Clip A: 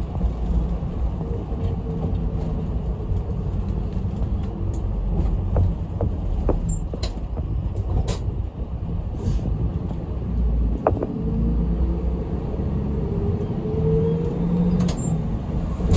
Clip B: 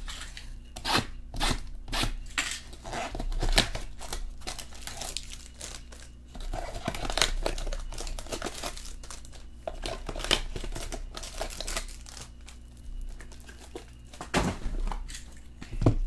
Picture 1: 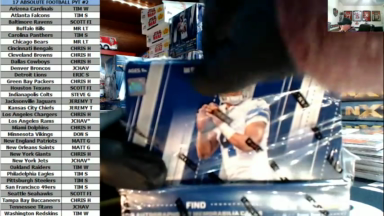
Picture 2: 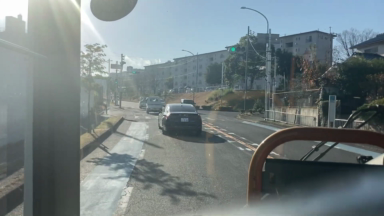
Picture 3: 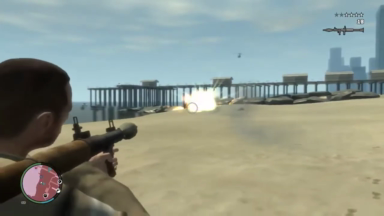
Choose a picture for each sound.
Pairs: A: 2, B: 1